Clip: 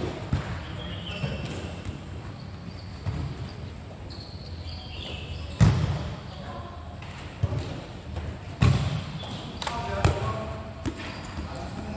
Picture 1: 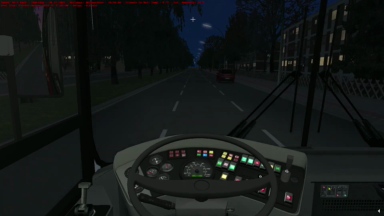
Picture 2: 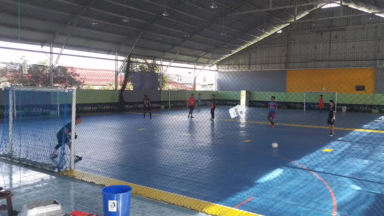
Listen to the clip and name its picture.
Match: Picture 2